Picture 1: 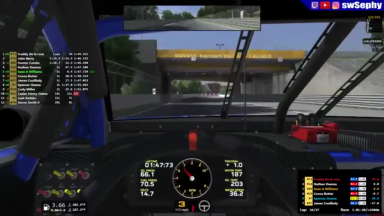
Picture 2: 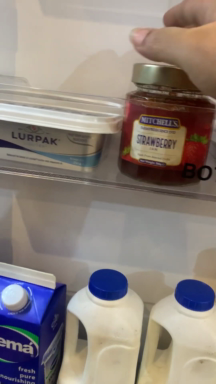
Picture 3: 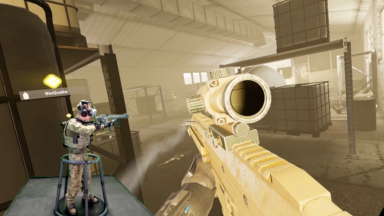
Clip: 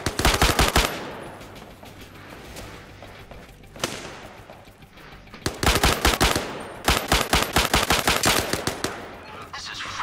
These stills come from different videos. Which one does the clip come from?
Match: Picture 3